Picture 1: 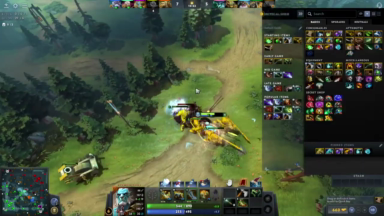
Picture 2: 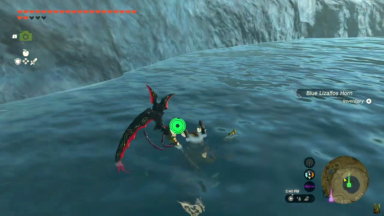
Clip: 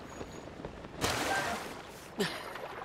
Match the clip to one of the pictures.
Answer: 2